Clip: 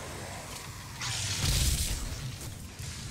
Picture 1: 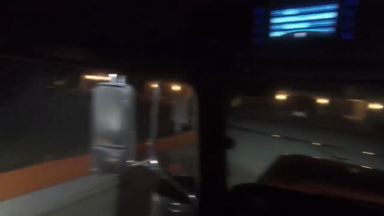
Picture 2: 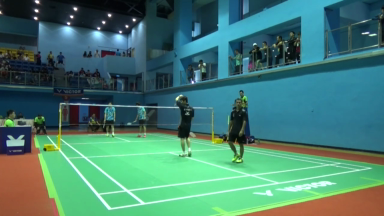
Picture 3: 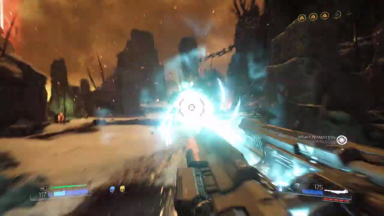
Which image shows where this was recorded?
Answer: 3